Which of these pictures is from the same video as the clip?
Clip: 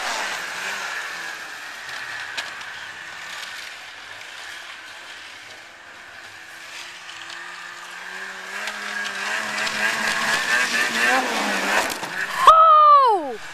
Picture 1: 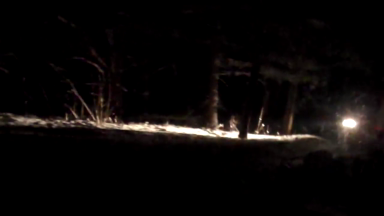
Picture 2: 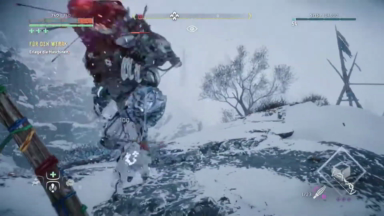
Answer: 1